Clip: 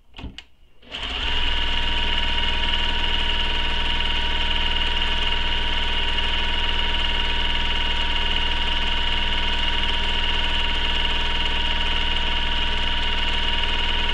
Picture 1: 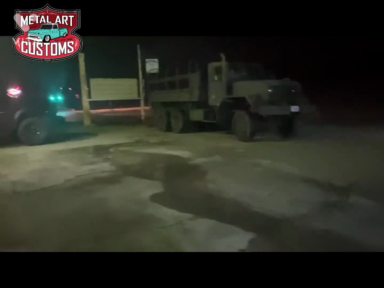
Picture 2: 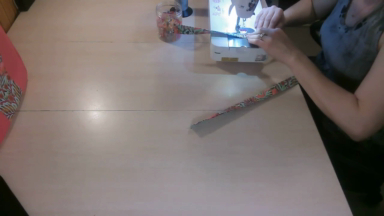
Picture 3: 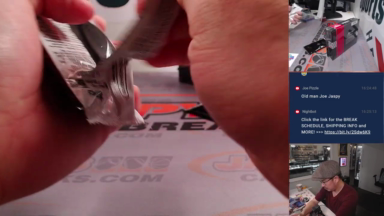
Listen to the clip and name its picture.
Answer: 2